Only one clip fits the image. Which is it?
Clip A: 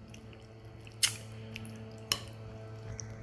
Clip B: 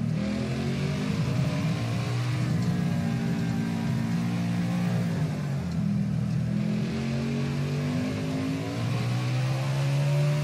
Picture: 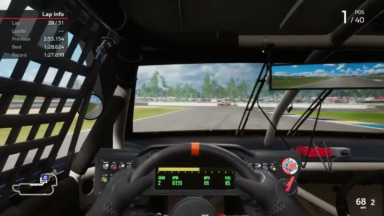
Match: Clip B